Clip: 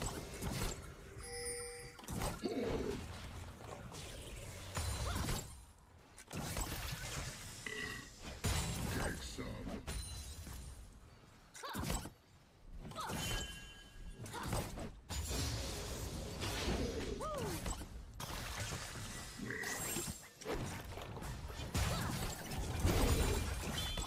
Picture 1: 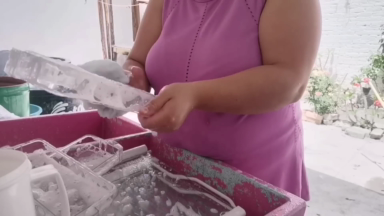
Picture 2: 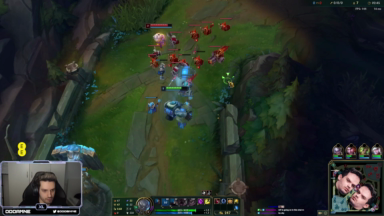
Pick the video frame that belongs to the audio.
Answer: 2